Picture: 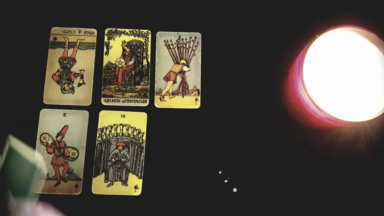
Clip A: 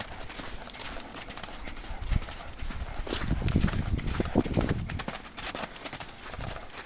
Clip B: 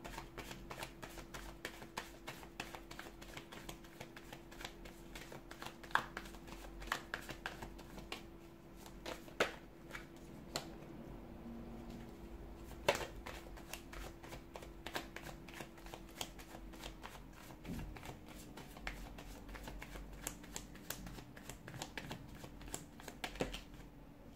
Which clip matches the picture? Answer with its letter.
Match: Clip B